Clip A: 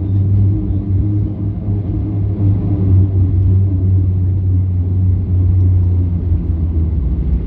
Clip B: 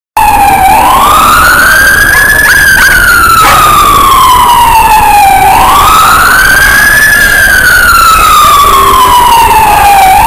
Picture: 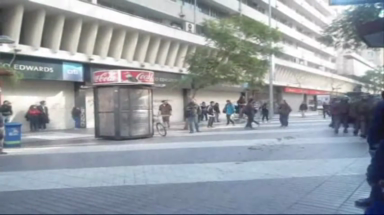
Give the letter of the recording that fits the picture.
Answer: B